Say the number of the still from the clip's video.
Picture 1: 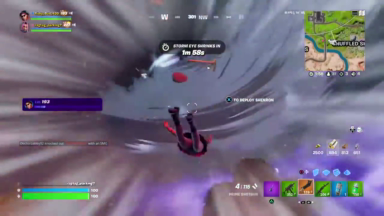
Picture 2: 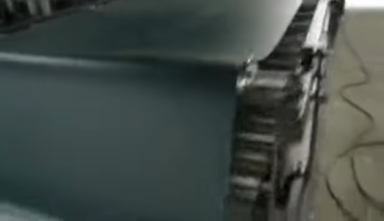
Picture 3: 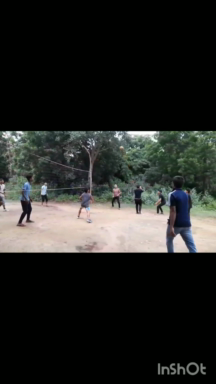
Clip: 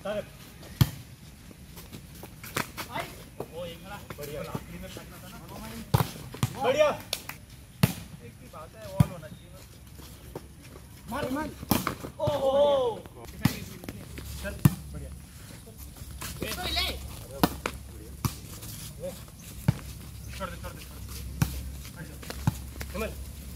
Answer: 3